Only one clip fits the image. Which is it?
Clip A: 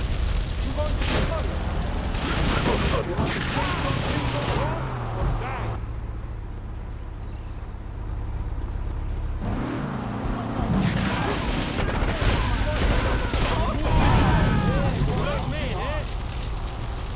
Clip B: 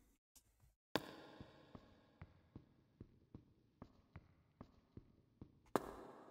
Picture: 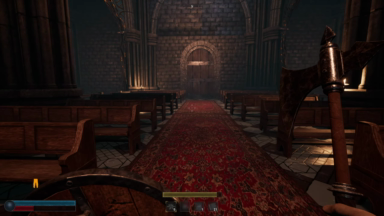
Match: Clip B